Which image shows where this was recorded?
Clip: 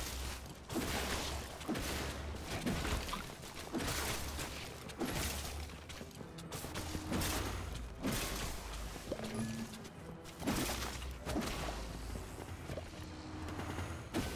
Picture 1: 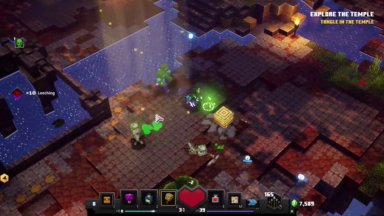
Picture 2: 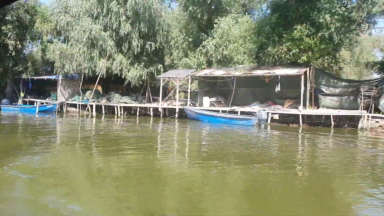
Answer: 1